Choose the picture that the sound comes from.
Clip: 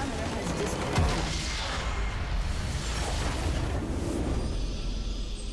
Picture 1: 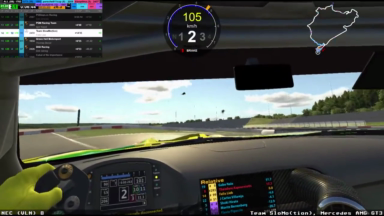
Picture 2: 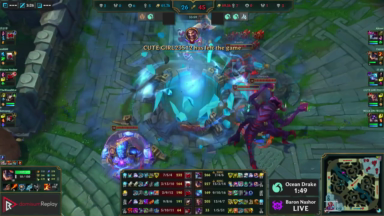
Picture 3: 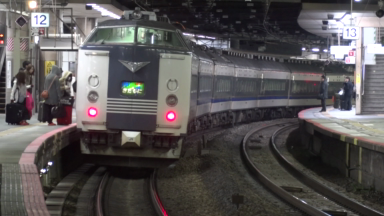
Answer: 2